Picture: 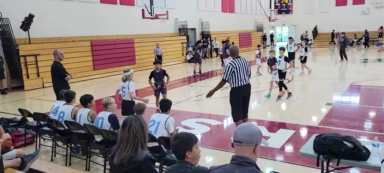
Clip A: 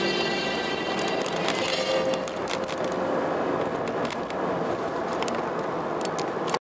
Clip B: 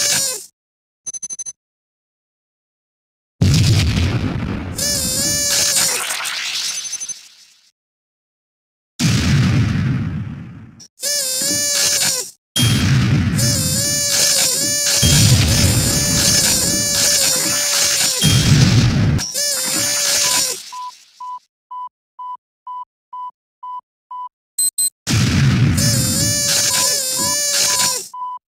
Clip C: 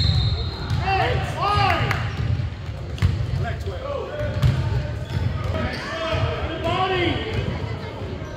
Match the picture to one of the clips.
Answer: C